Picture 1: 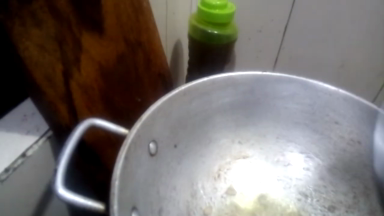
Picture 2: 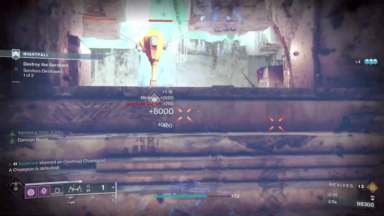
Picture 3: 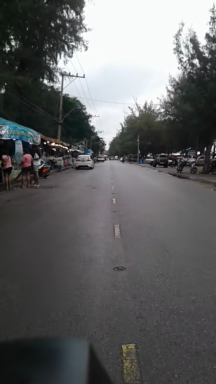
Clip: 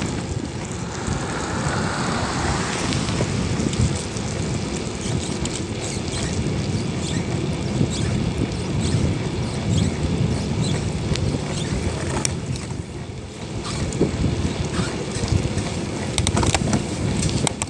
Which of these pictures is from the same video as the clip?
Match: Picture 3